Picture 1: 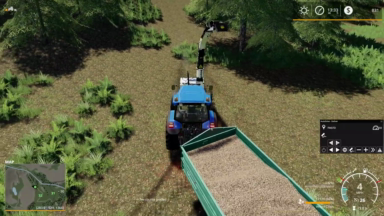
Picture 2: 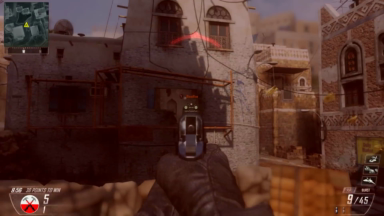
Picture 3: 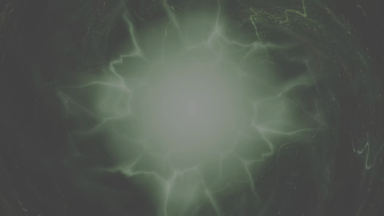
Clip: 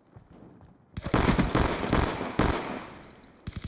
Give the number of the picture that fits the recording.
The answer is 2